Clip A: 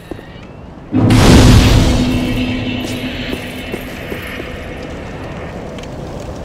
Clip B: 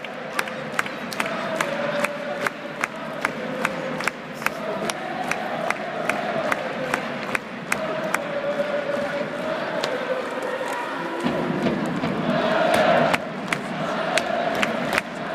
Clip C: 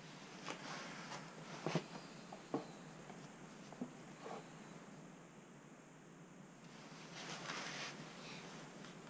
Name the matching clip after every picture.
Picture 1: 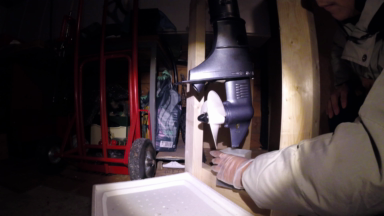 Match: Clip C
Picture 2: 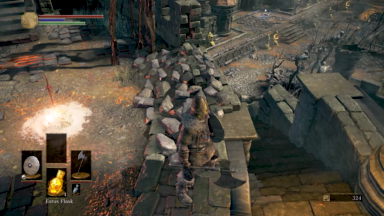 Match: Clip A